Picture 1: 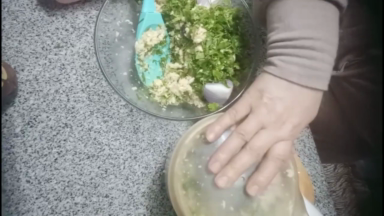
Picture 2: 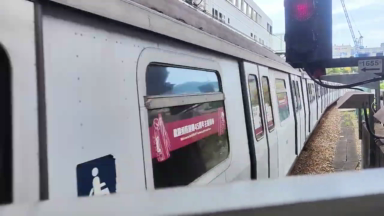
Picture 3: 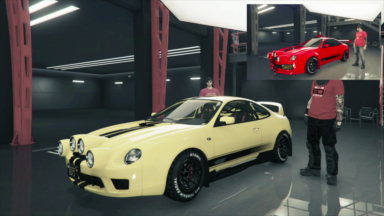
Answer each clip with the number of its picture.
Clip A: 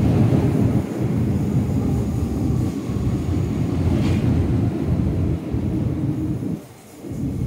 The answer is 2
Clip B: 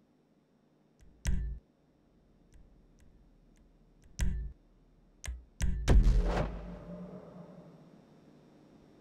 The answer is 3